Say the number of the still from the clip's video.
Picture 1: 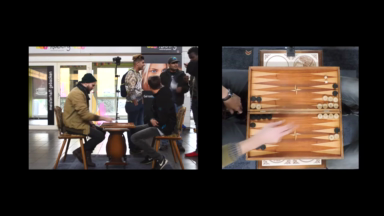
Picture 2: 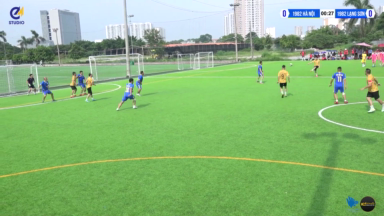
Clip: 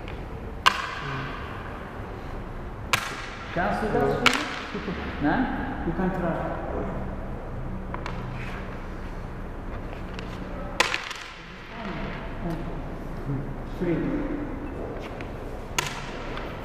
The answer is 1